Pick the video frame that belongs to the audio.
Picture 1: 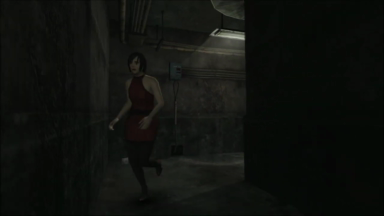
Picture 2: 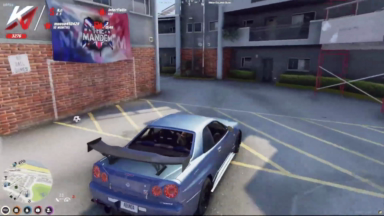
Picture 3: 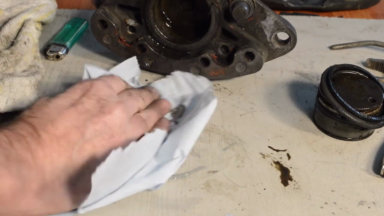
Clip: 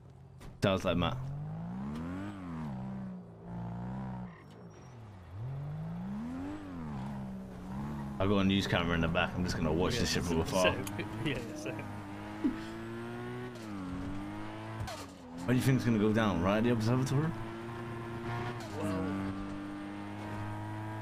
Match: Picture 2